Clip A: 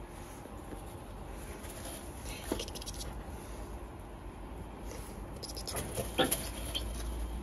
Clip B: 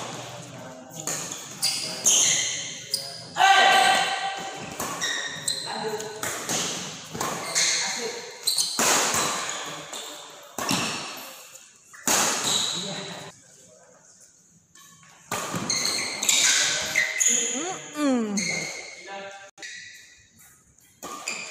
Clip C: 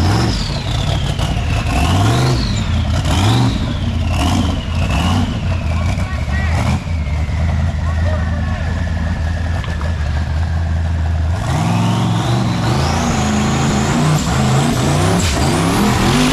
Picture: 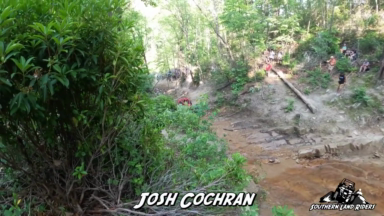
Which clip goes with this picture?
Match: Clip C